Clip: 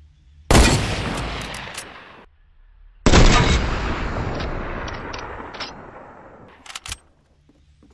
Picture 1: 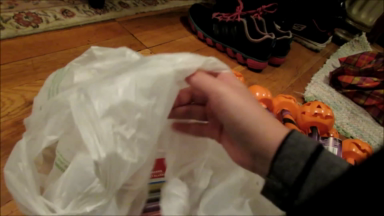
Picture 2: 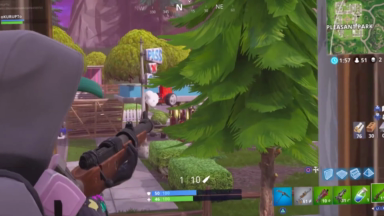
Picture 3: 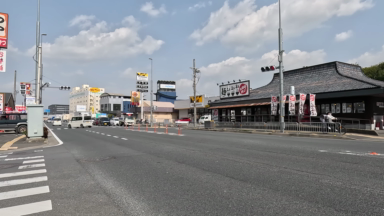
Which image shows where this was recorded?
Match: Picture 2